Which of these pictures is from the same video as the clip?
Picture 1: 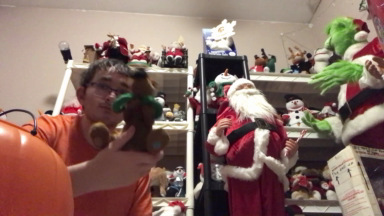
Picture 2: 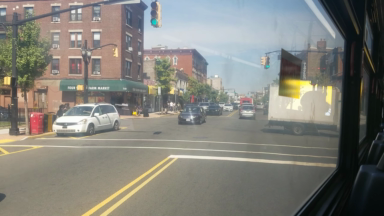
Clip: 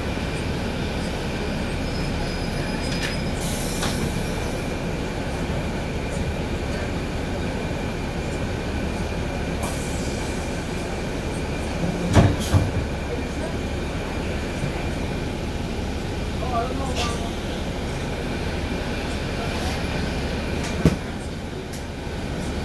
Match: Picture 2